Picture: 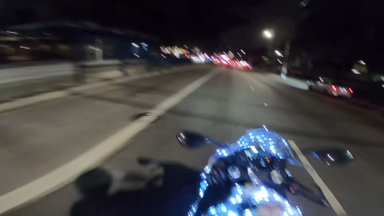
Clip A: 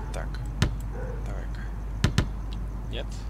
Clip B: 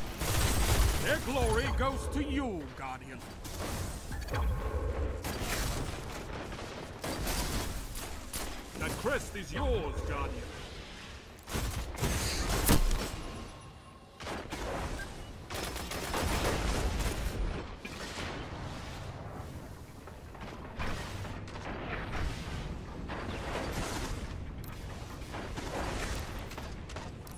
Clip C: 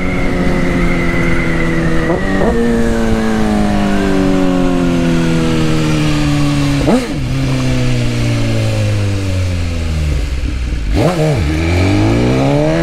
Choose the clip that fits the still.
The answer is C